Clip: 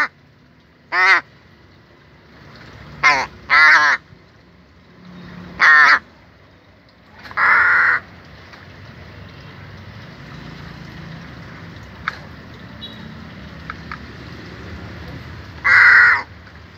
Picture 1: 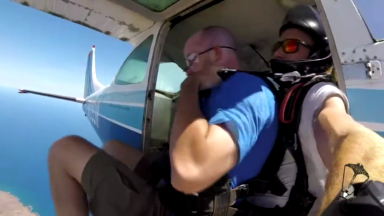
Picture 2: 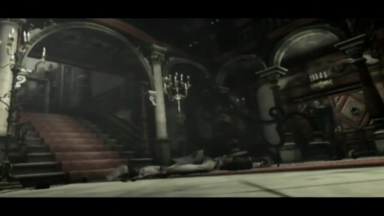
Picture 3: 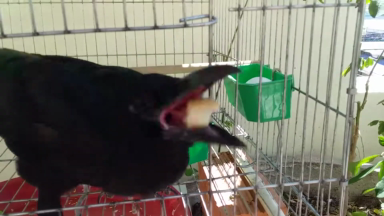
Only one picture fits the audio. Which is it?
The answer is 3